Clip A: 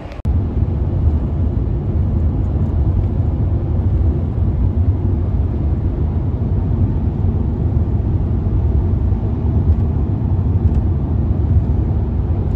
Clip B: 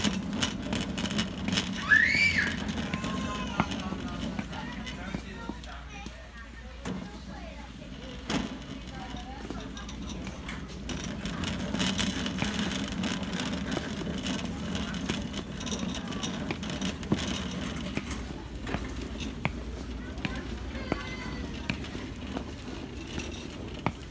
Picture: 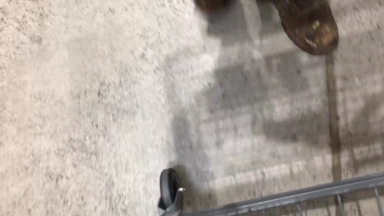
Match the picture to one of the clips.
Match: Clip B